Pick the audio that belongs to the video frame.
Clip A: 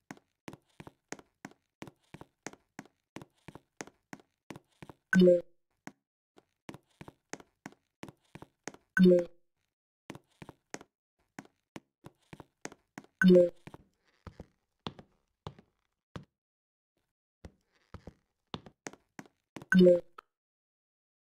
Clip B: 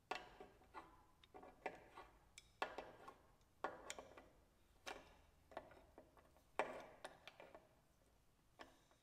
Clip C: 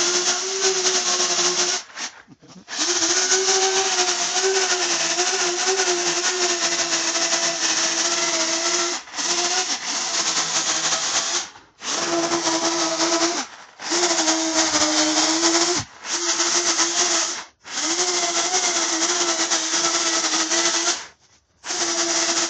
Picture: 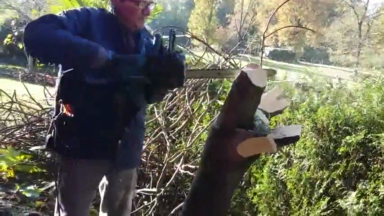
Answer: C